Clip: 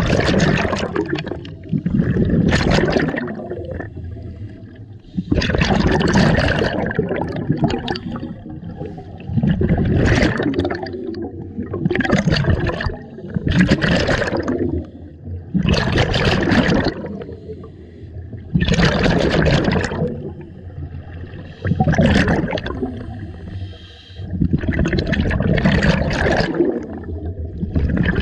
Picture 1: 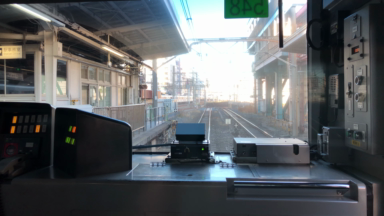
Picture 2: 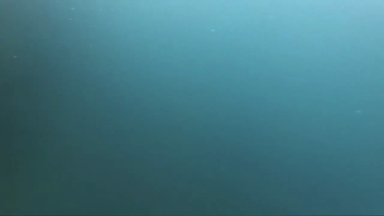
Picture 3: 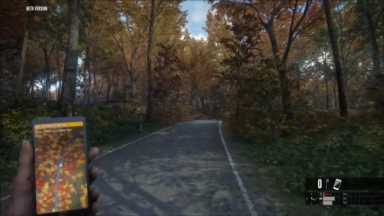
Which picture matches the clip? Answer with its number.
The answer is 2